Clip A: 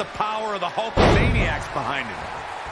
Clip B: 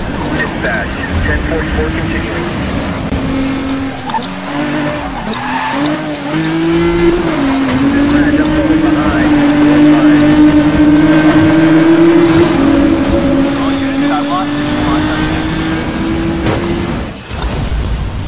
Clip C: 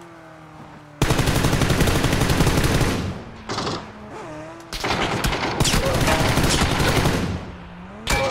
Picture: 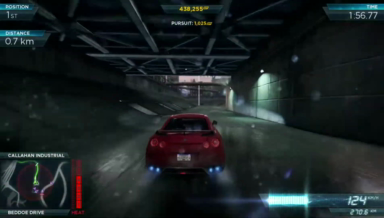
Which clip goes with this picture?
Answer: B